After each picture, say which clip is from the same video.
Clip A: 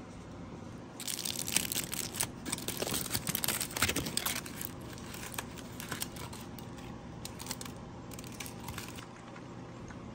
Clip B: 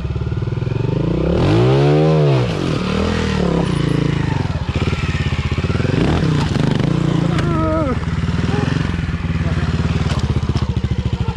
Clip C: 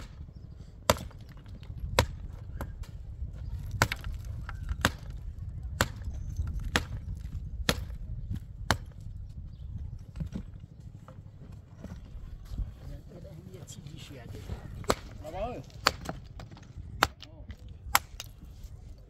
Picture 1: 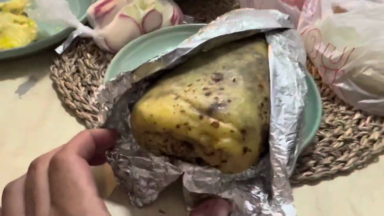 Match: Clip A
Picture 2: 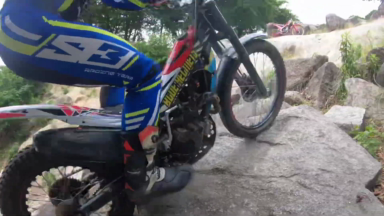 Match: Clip B